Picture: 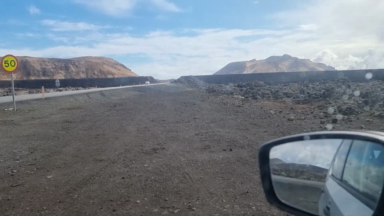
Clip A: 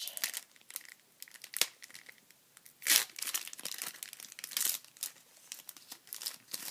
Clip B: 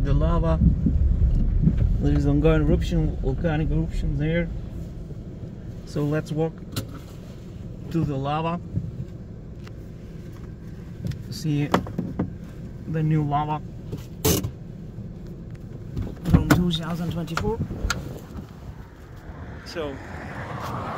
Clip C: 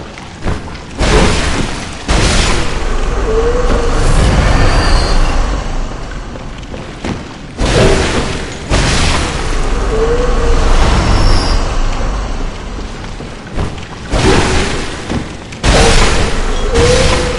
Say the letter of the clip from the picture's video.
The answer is B